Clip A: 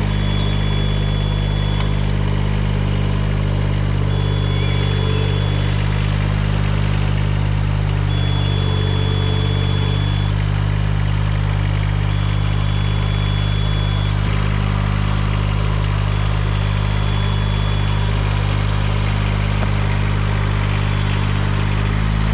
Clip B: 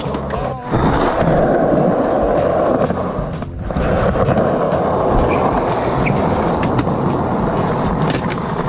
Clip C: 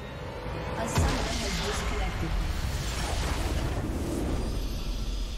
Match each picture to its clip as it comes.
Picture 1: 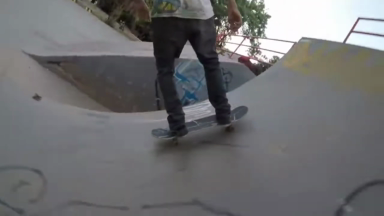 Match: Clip B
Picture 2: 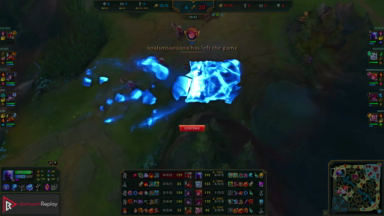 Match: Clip C